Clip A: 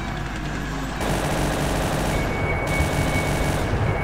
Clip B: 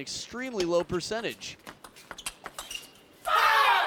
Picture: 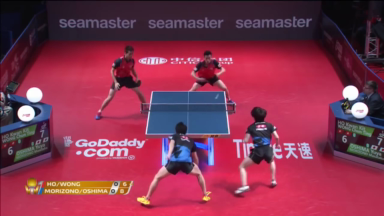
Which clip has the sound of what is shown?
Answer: B